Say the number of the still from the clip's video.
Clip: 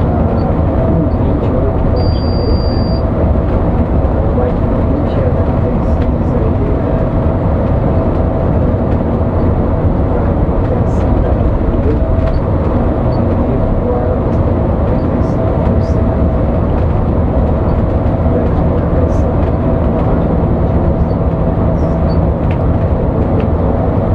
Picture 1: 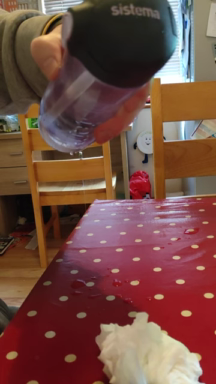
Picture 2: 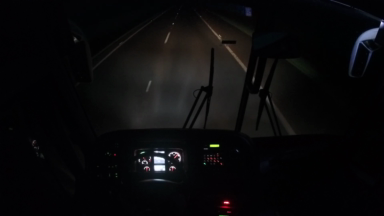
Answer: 2